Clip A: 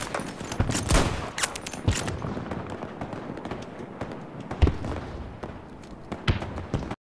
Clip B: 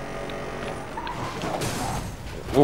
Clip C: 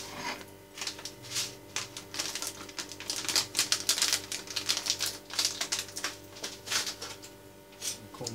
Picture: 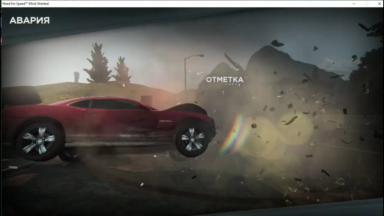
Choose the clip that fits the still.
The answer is B